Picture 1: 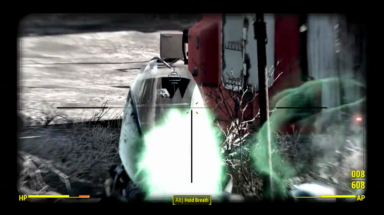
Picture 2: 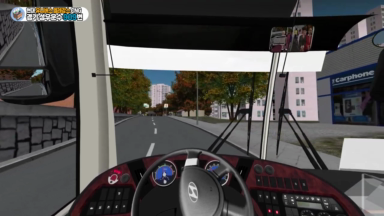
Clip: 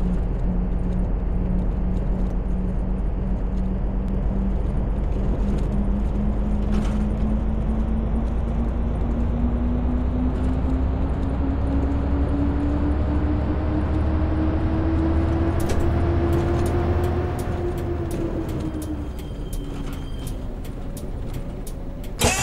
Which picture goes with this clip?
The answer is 2